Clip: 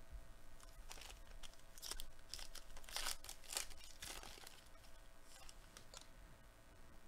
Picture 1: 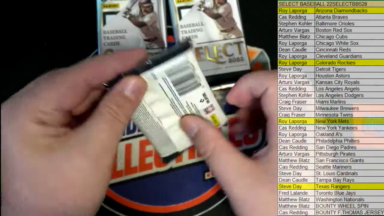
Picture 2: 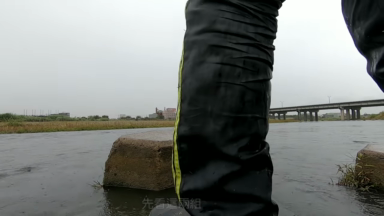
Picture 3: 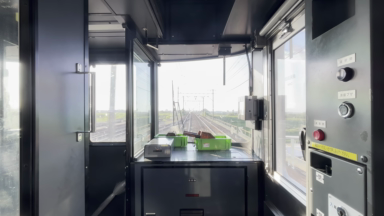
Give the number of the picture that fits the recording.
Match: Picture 1